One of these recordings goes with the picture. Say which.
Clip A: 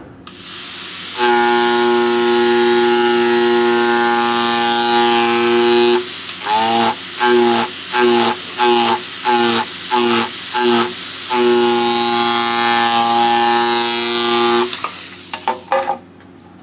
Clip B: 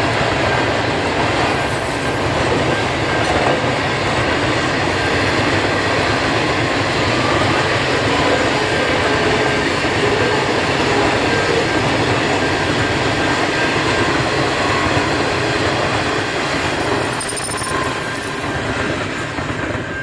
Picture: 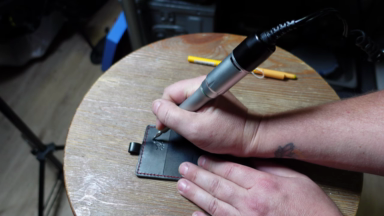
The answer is A